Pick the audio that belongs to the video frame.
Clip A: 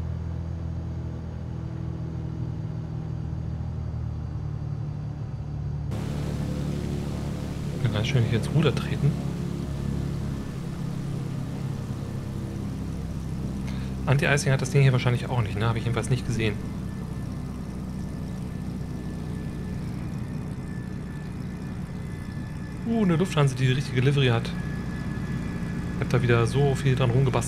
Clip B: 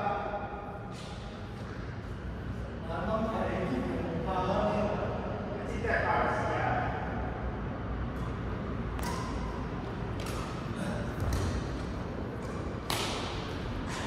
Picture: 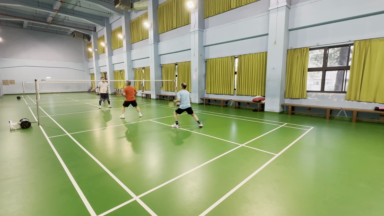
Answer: B